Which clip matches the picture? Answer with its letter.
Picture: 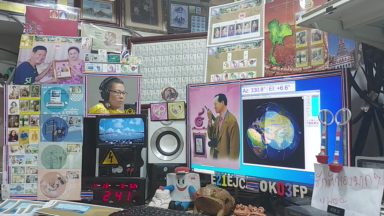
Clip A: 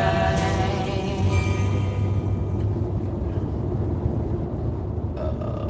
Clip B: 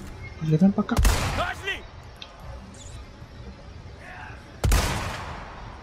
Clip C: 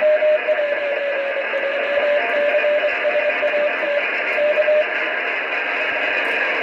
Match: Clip C